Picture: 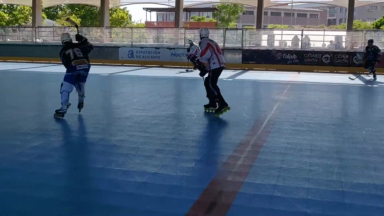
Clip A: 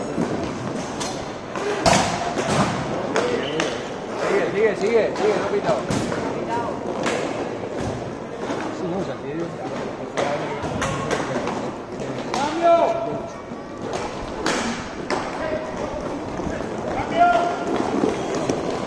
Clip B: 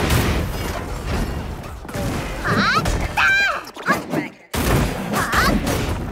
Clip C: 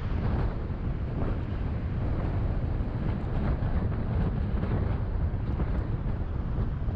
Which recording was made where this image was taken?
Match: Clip A